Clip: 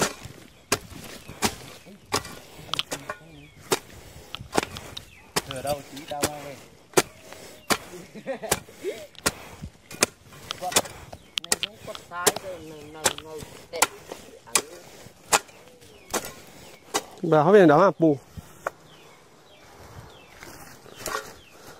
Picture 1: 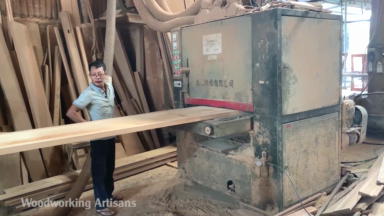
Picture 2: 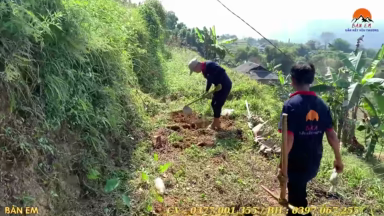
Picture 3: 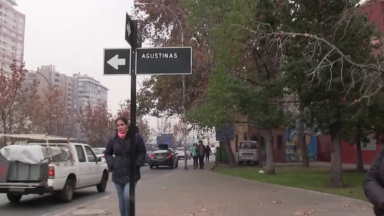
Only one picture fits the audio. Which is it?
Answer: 2